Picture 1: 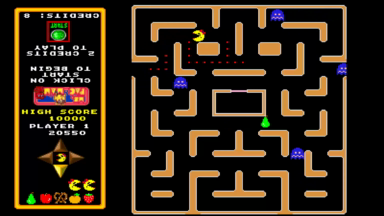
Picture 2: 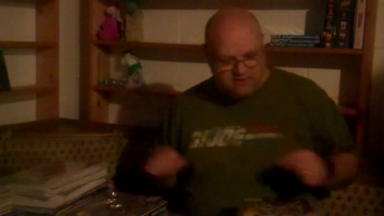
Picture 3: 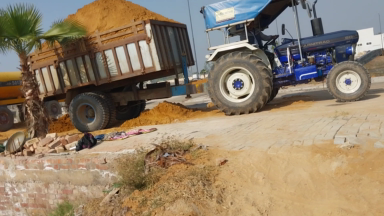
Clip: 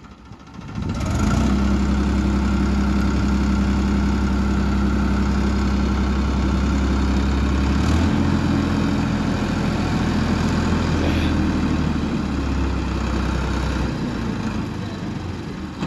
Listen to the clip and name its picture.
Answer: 3